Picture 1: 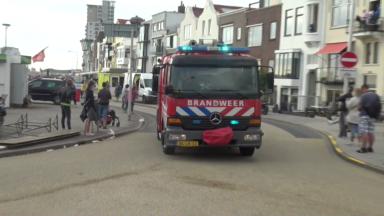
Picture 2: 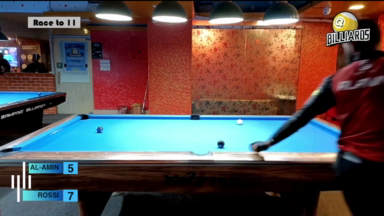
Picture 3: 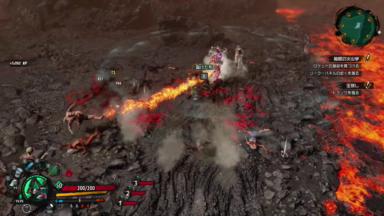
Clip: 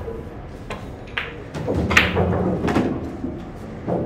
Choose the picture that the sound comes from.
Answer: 2